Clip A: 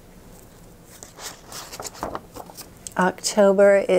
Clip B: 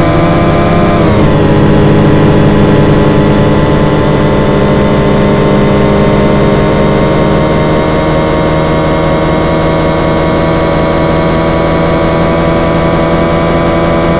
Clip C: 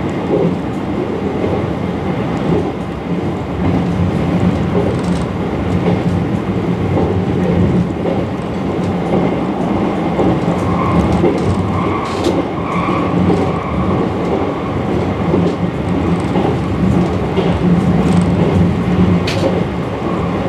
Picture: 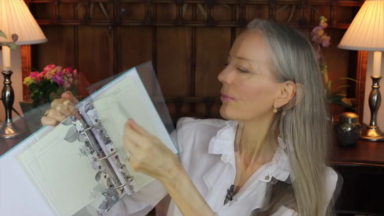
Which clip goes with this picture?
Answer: A